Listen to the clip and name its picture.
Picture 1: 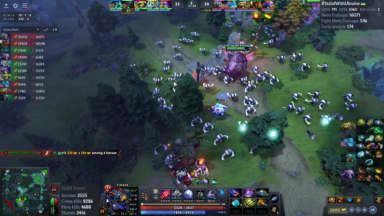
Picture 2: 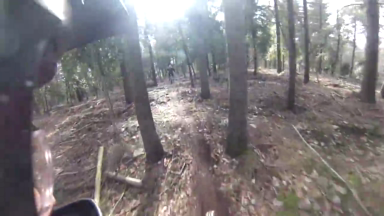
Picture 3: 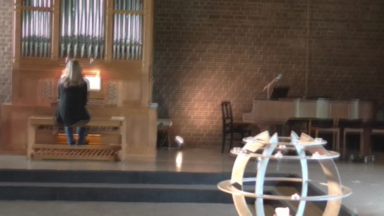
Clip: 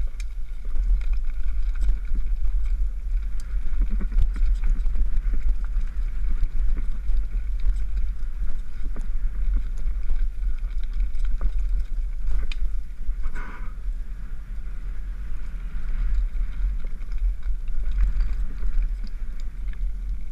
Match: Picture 2